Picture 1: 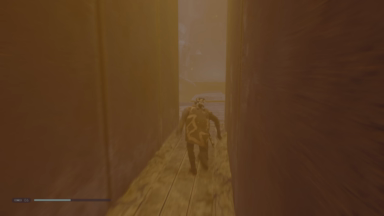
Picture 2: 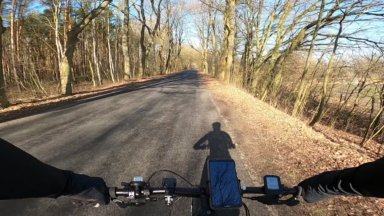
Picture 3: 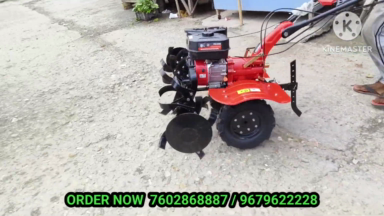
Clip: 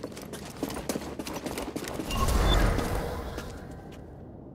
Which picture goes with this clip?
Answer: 1